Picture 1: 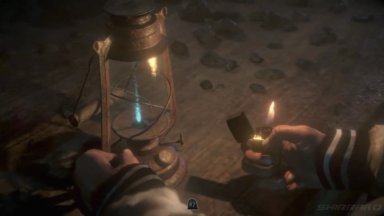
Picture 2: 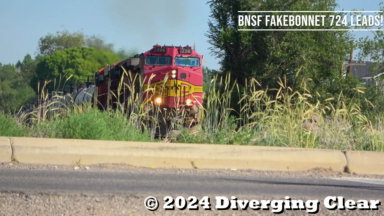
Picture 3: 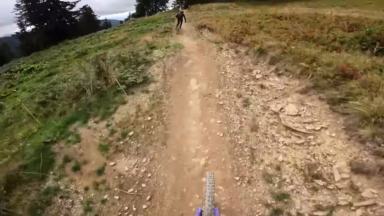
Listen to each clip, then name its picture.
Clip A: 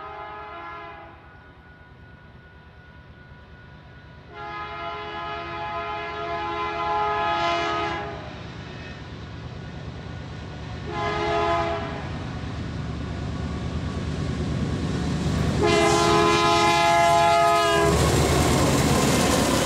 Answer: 2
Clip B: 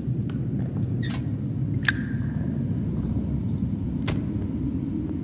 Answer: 1